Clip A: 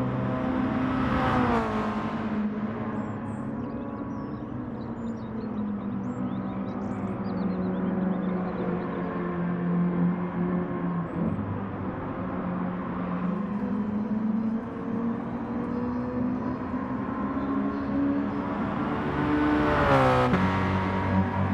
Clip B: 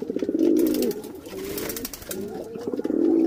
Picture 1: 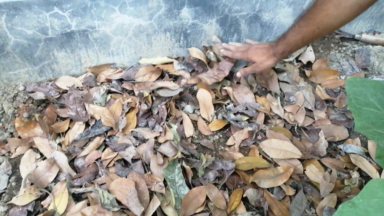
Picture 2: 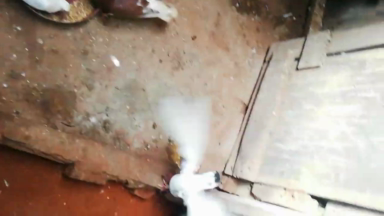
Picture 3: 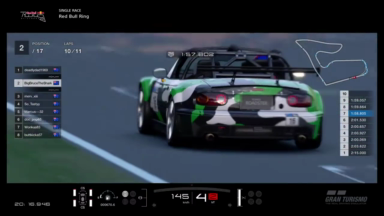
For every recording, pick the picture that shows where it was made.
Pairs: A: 3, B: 2